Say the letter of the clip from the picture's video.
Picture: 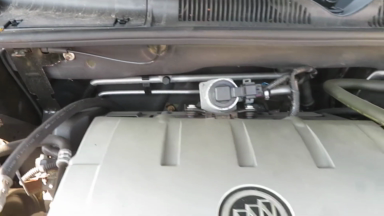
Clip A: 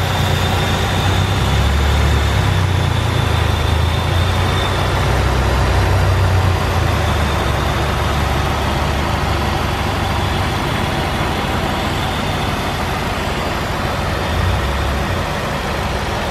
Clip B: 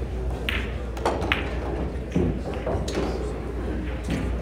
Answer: A